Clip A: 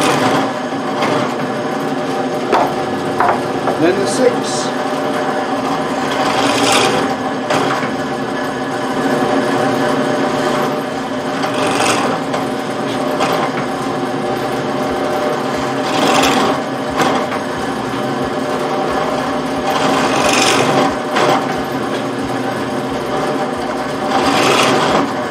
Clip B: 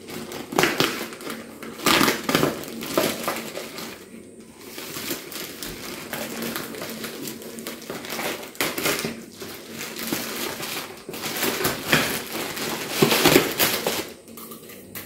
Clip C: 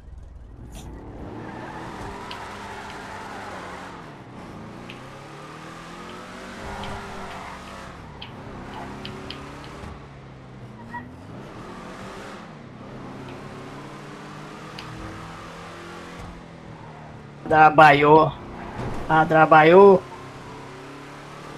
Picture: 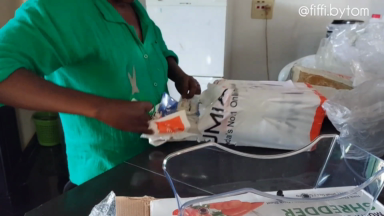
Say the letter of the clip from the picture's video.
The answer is B